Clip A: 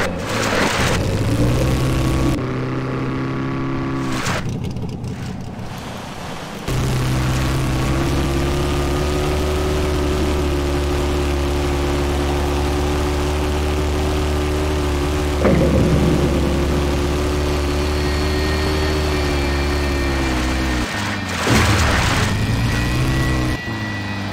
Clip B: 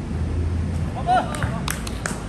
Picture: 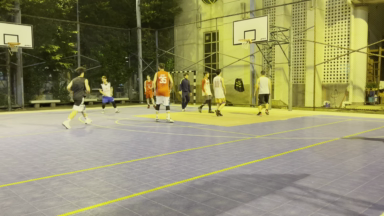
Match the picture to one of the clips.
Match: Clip B